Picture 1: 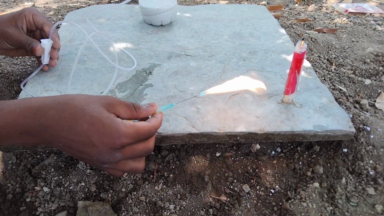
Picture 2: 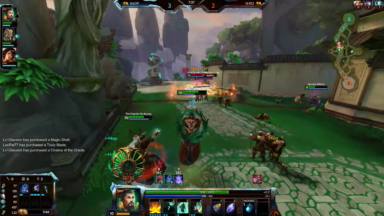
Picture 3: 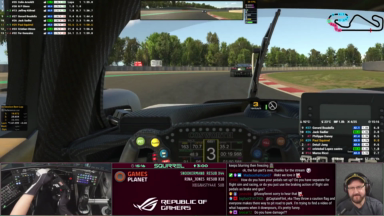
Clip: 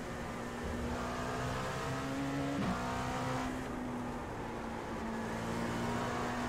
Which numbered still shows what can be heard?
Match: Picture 3